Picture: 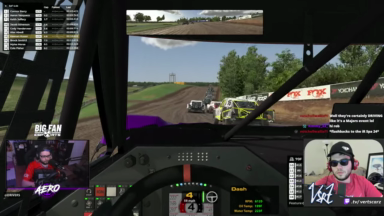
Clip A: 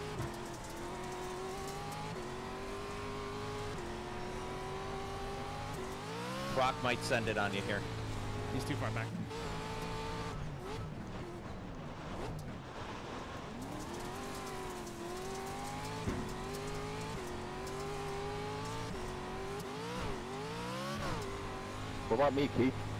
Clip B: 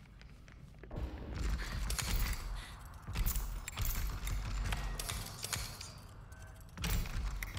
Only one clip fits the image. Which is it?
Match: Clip A